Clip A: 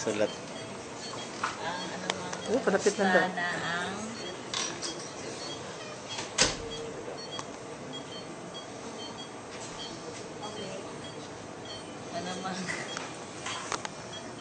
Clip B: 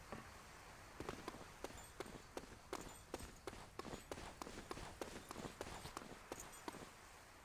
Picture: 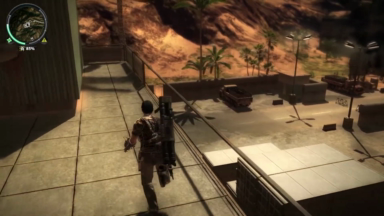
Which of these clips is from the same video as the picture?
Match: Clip B